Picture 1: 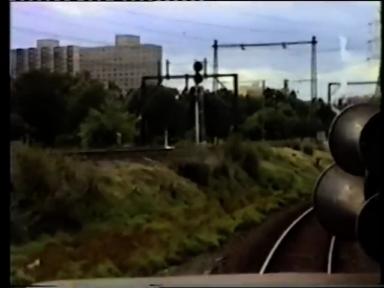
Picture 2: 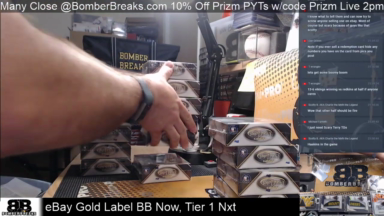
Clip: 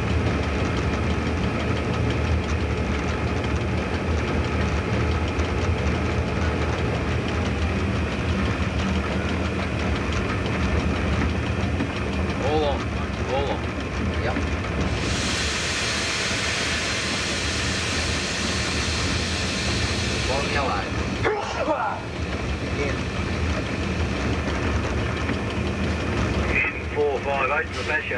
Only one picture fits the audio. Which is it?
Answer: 1